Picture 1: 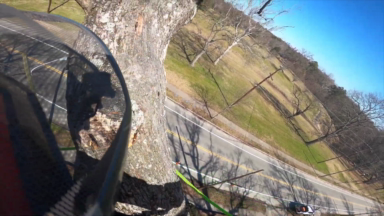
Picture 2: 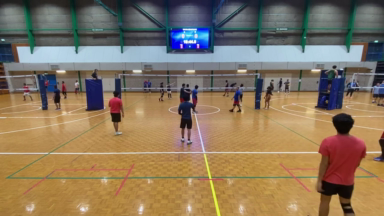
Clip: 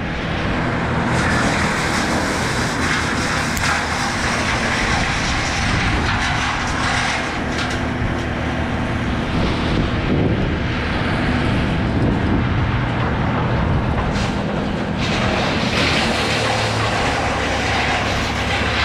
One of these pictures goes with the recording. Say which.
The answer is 1